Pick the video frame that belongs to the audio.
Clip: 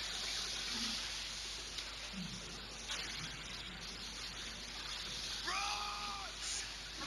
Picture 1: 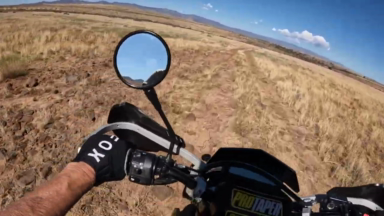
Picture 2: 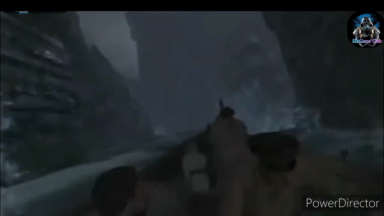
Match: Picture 2